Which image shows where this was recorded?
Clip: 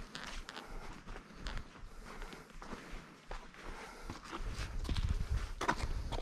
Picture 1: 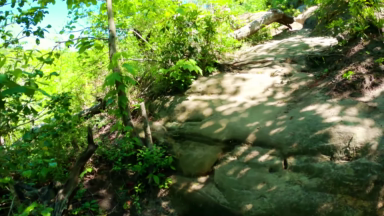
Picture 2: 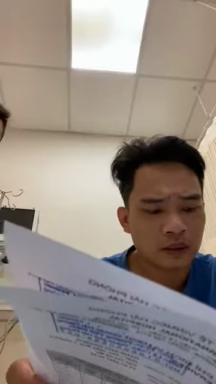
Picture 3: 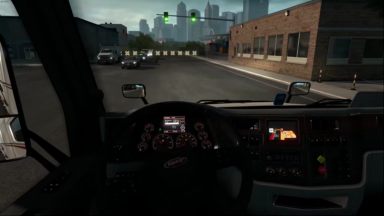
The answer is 1